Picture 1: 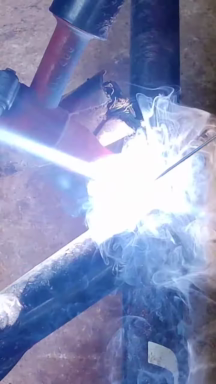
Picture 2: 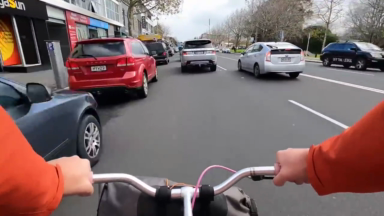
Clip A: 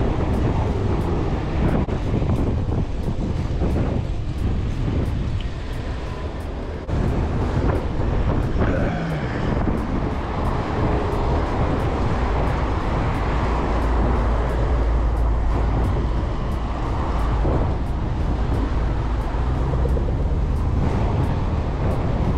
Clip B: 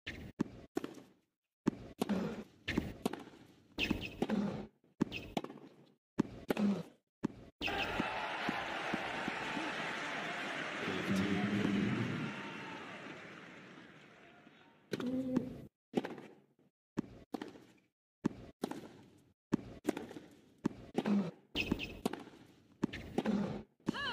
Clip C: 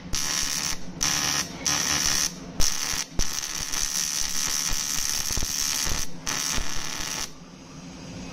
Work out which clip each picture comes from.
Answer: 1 C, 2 A